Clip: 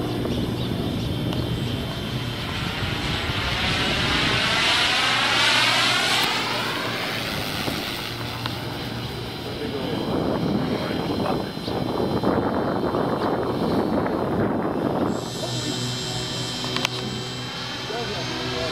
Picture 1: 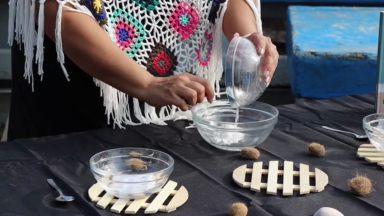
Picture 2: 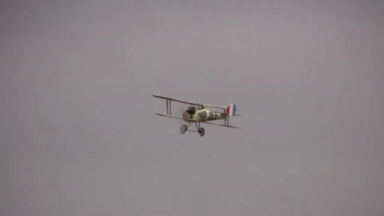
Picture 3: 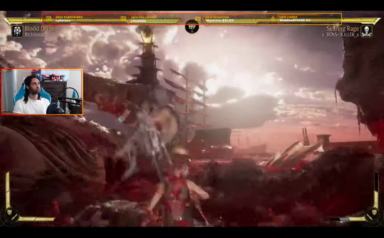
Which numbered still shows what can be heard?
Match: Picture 2